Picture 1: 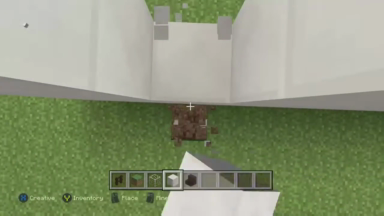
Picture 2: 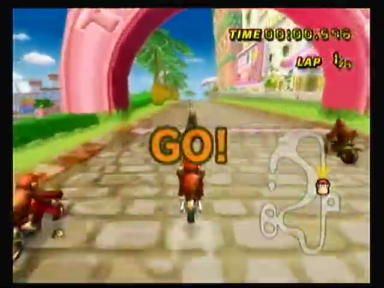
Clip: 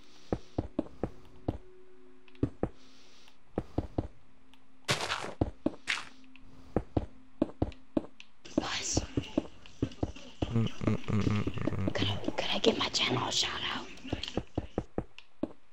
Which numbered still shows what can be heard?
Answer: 1